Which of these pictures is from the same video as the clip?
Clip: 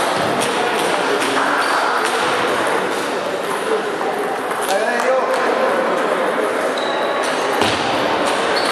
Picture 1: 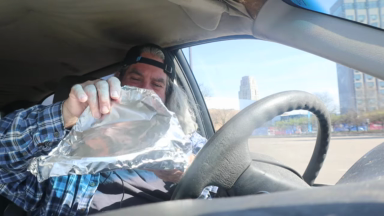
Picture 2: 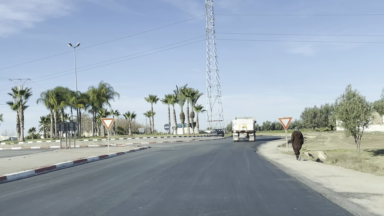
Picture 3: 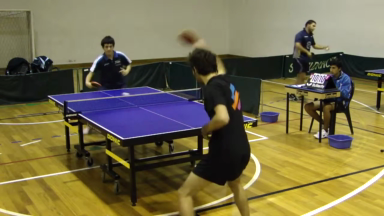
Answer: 3